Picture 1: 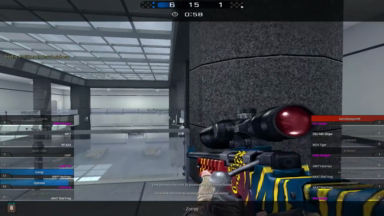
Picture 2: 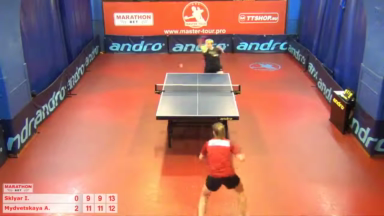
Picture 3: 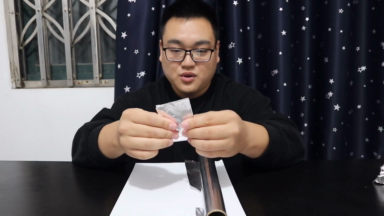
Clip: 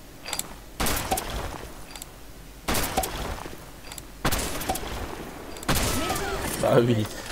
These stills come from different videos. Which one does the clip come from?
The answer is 1